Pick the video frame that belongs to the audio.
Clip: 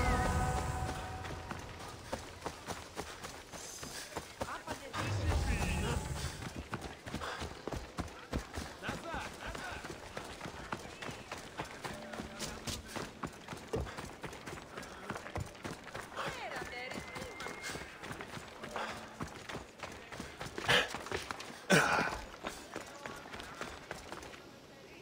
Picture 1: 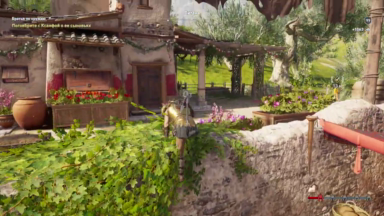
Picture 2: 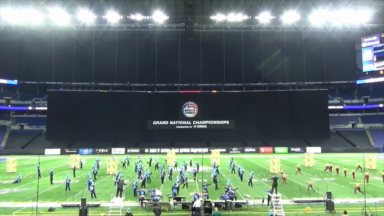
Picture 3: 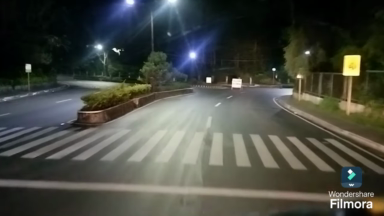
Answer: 1